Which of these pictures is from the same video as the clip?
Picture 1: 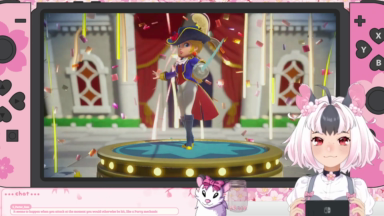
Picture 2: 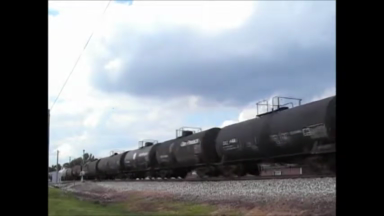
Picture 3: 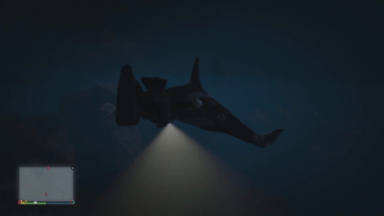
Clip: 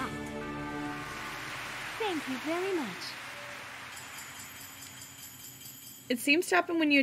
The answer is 1